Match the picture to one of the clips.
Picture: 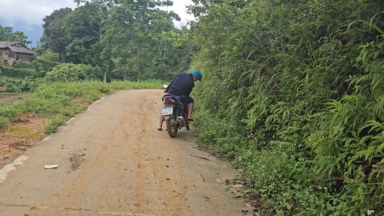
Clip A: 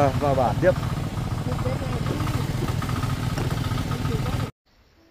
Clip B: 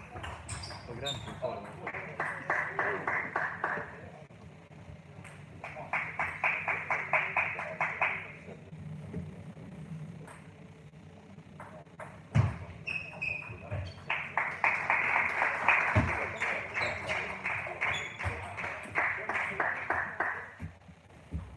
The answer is A